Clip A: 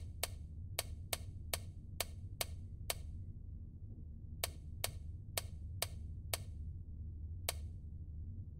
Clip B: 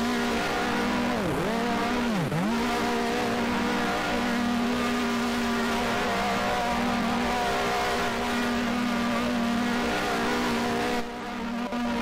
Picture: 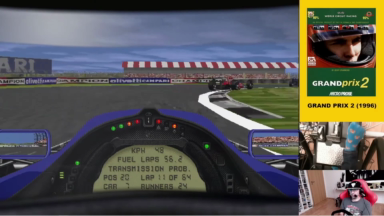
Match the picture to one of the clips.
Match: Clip B